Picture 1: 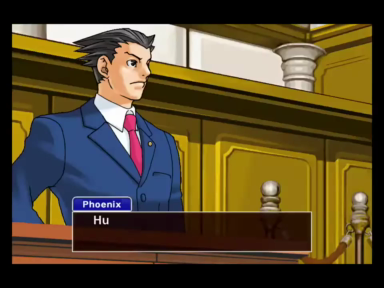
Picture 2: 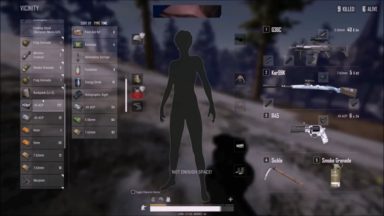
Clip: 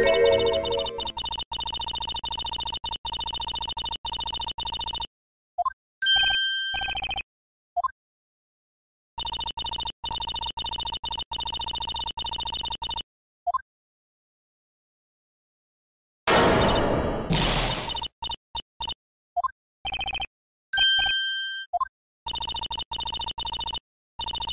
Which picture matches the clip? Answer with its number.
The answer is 1